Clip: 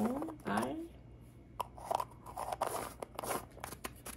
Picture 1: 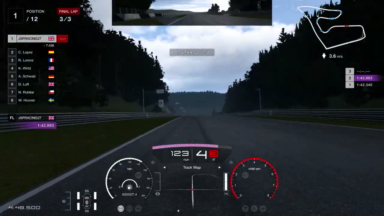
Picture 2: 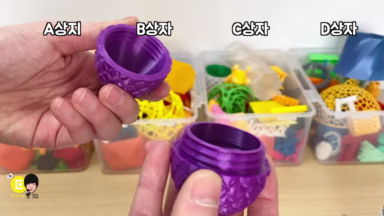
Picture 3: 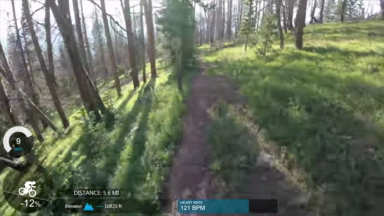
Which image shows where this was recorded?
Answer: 2